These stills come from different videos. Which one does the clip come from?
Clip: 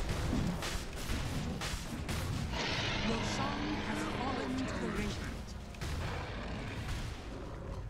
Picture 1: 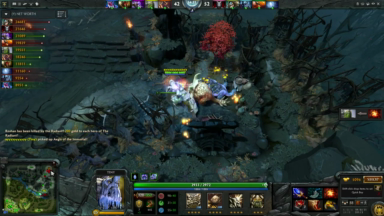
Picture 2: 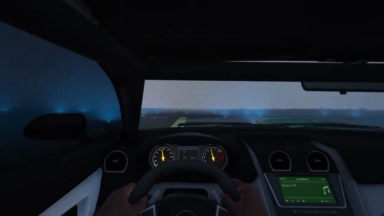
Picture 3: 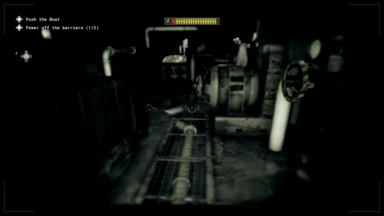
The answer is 1